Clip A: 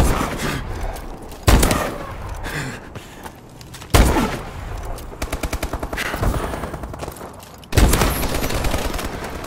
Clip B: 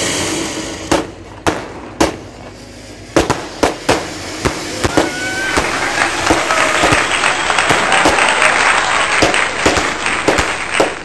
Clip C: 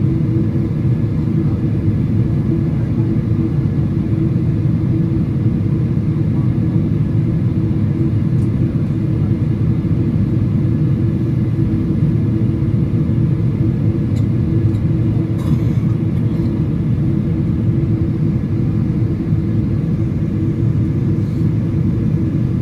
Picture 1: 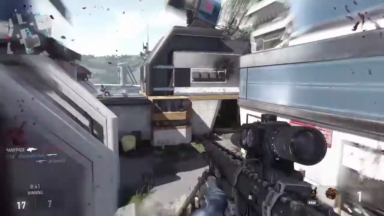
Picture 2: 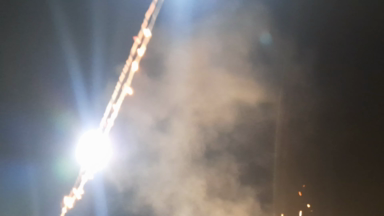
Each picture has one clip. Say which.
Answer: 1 A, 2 B